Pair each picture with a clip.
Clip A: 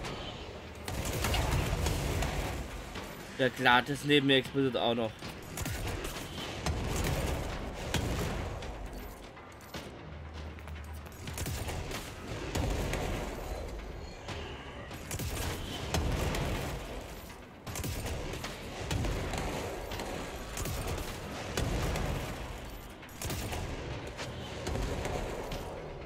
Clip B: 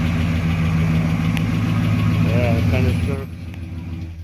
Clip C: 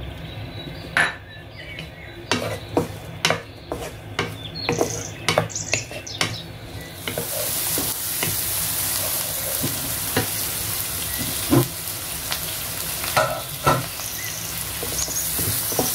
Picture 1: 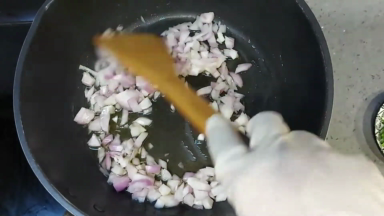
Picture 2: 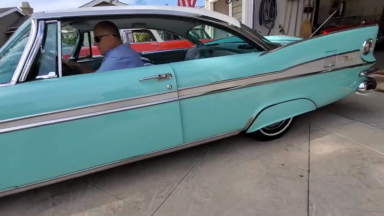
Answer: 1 C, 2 B